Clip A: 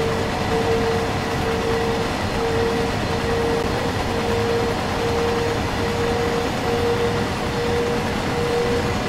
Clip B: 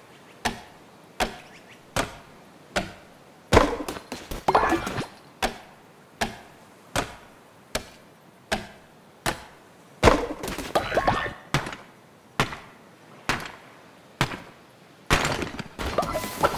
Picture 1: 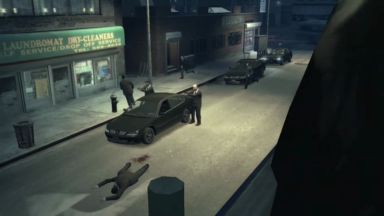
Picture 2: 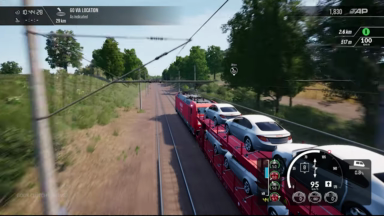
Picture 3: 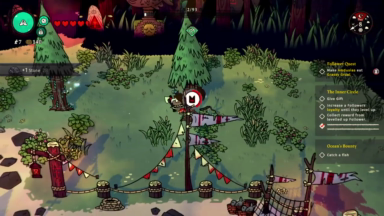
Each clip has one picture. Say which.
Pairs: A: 2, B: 3